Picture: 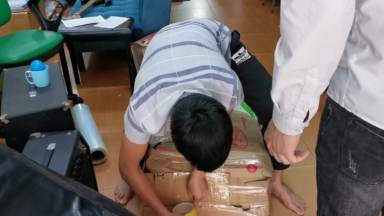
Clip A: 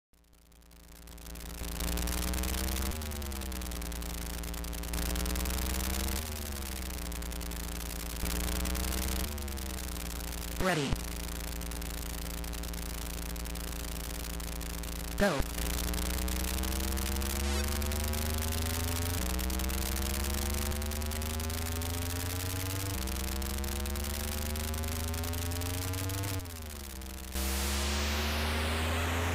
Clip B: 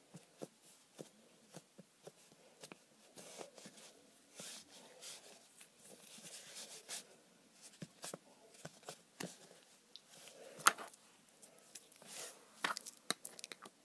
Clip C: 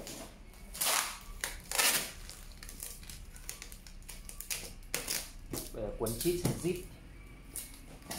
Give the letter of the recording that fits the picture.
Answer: C